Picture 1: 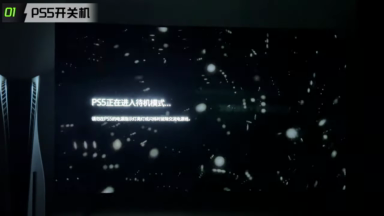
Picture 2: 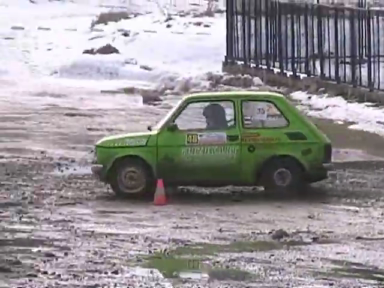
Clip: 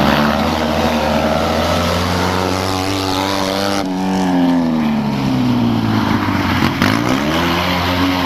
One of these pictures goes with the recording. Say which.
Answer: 2